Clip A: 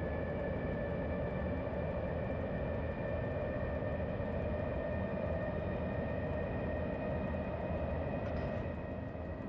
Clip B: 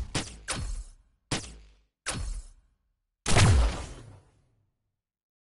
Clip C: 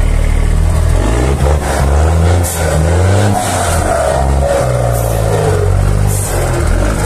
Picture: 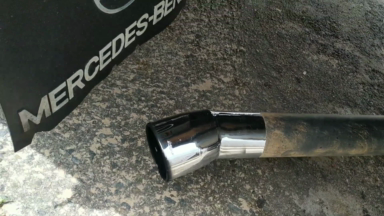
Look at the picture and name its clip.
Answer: C